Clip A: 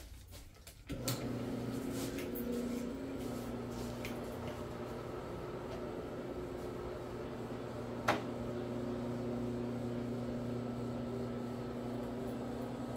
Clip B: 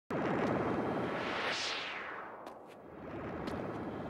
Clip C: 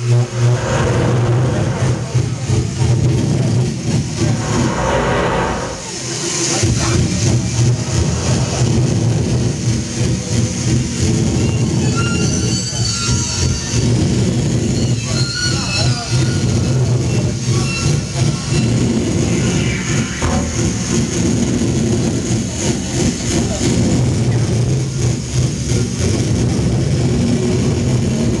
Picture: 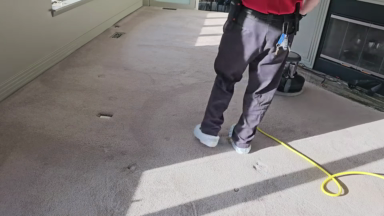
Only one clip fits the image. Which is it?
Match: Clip A